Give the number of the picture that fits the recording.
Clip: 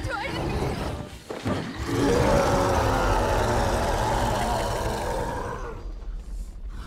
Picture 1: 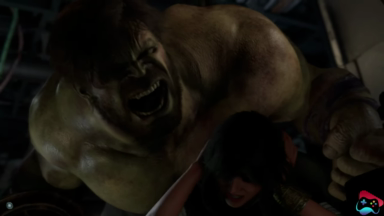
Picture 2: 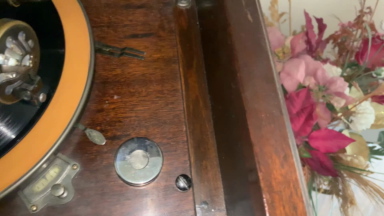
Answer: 1